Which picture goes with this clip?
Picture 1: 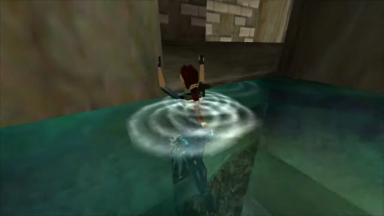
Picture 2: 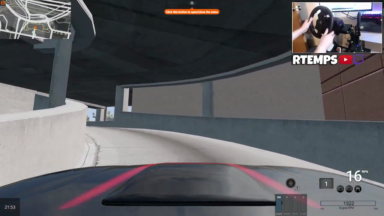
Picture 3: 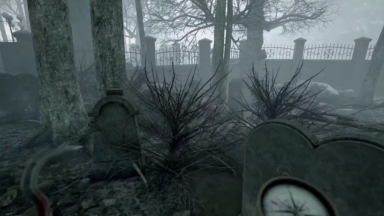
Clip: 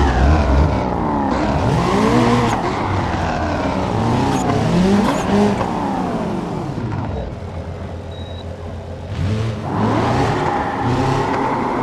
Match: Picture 2